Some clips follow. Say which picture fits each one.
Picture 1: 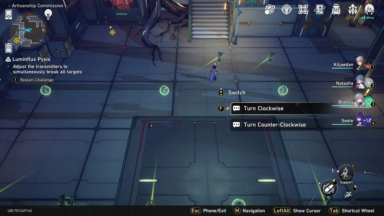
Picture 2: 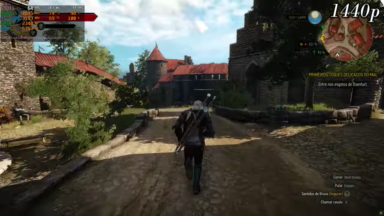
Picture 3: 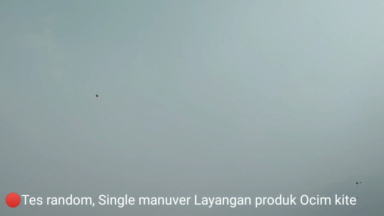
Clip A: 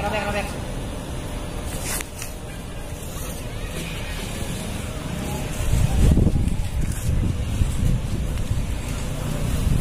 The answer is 3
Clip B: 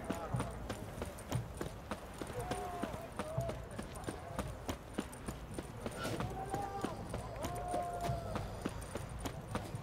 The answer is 2